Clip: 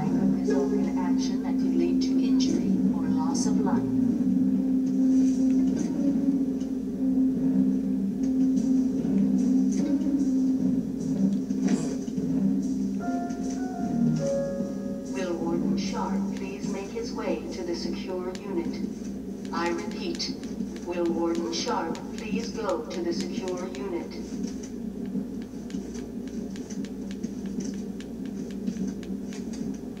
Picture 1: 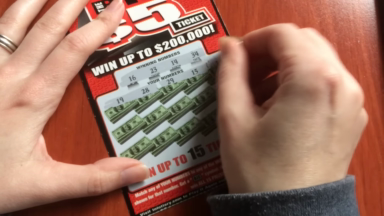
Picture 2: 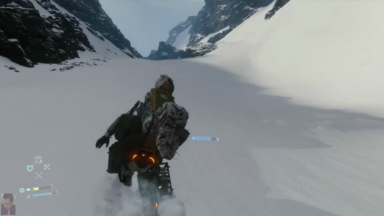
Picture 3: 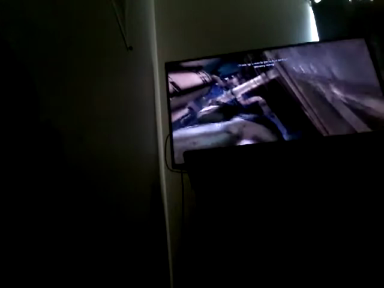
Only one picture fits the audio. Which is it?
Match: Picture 3